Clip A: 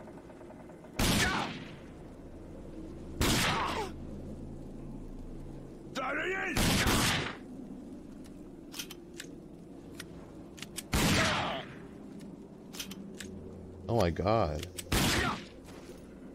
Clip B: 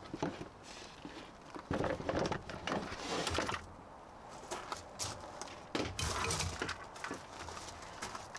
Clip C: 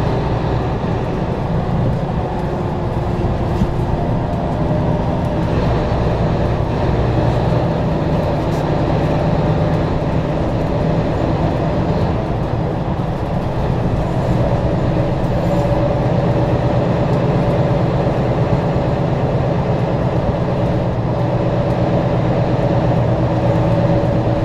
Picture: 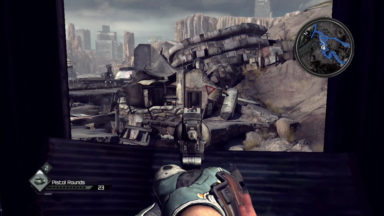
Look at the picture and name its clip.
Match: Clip A